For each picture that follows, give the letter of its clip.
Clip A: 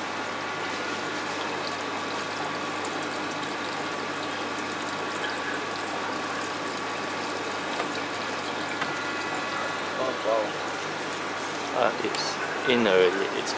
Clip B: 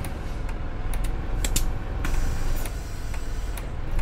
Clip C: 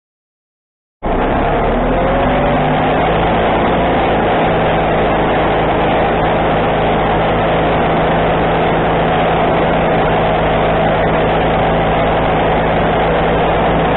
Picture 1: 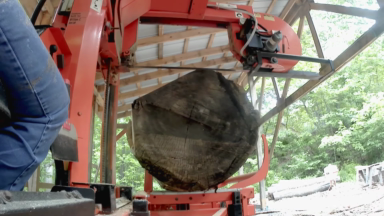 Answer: C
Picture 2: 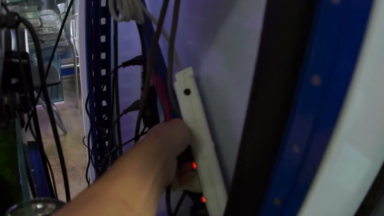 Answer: A